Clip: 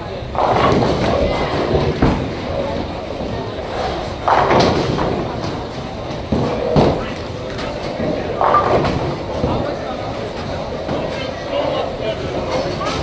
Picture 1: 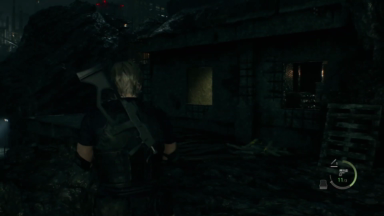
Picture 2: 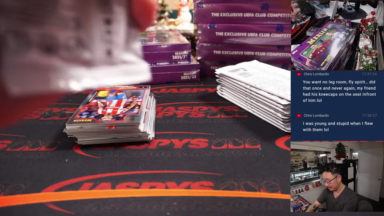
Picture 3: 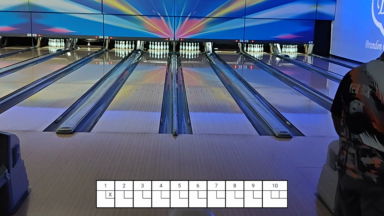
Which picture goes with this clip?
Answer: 3